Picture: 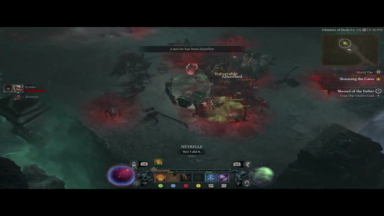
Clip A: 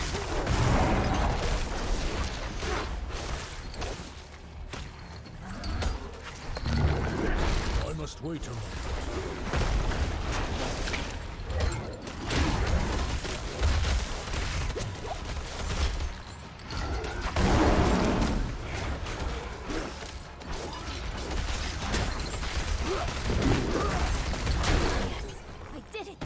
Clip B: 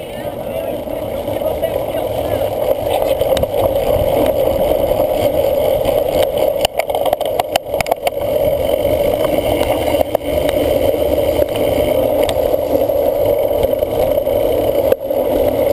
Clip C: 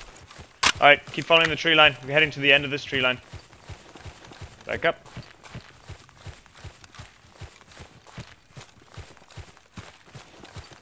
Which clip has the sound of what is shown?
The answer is A